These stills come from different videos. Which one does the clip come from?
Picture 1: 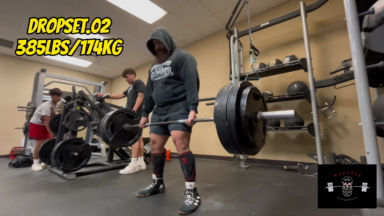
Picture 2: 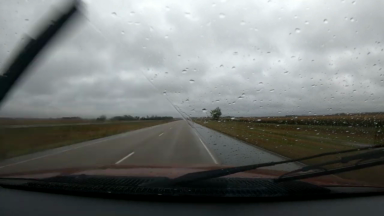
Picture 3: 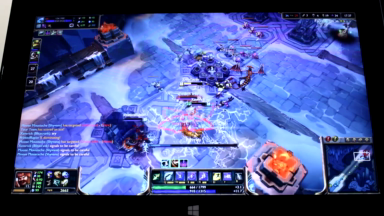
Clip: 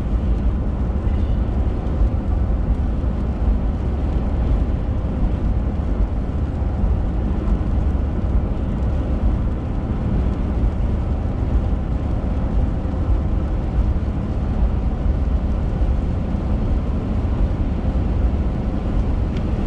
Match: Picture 2